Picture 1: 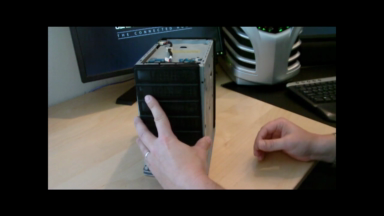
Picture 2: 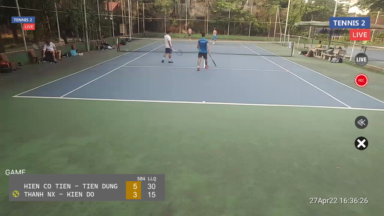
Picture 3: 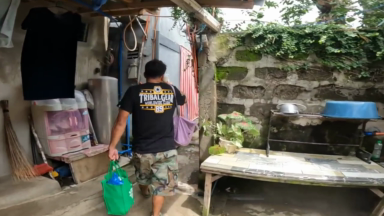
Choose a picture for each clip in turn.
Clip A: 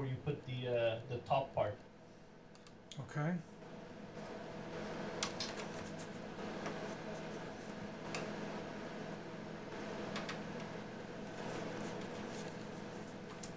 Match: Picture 1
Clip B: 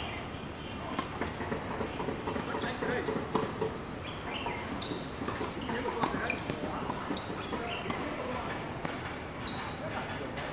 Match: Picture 2